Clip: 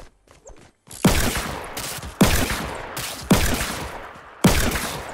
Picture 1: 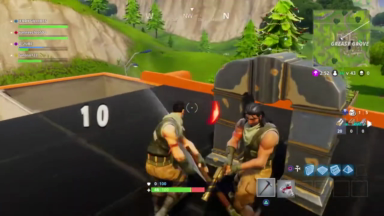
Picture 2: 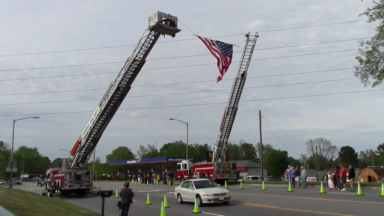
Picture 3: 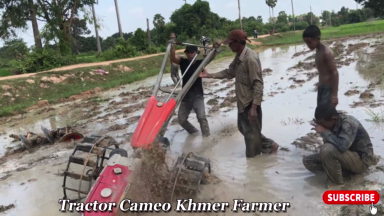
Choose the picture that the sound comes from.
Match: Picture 1